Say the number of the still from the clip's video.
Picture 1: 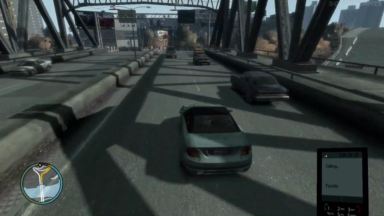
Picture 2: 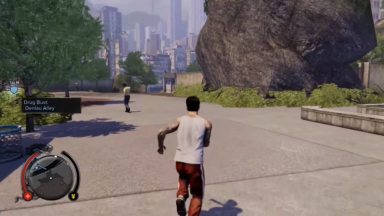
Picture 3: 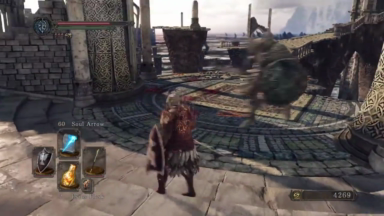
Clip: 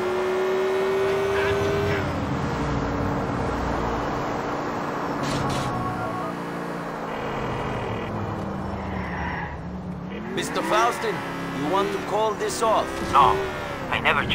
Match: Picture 1